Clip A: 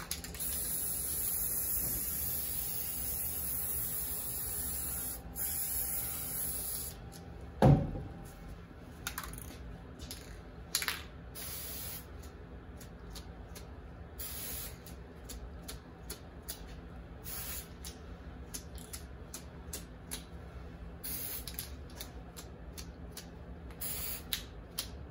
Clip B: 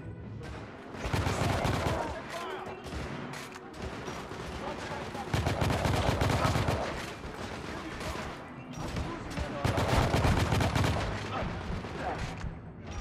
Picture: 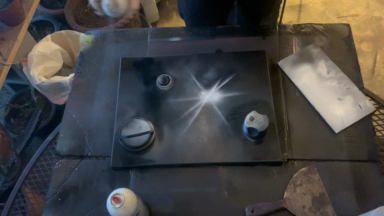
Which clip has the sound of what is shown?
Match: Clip A